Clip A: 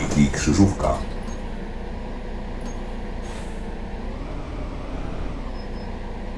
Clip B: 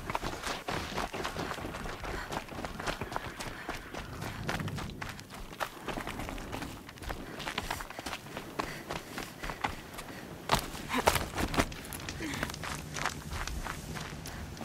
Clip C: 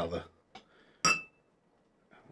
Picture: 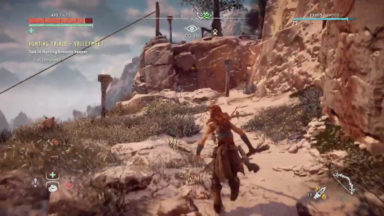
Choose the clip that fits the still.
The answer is B